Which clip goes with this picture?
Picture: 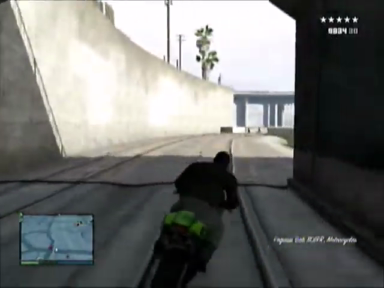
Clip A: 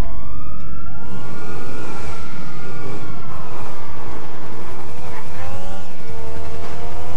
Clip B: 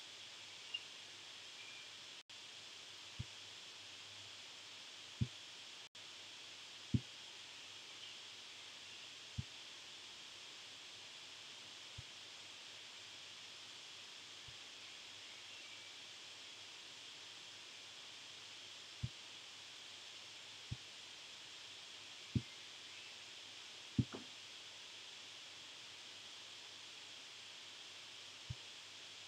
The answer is A